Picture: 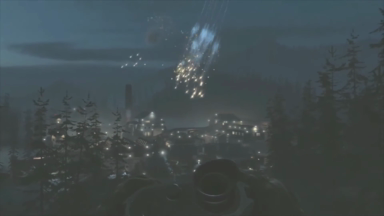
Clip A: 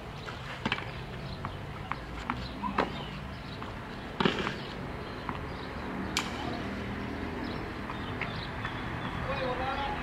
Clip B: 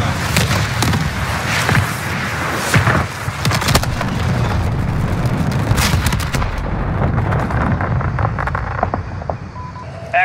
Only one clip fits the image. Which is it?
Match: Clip B